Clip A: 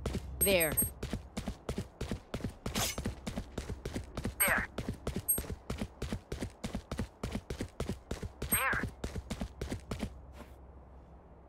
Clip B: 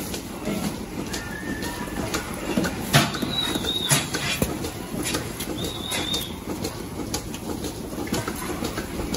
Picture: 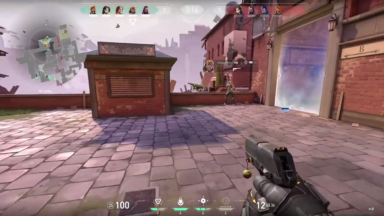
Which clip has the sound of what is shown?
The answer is A